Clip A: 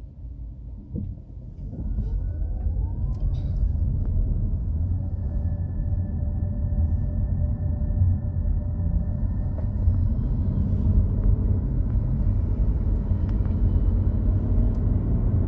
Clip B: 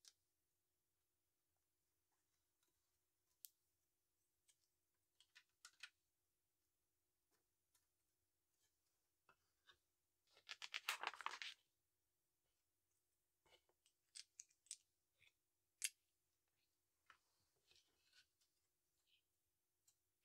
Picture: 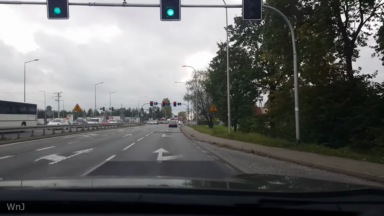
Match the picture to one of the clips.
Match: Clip A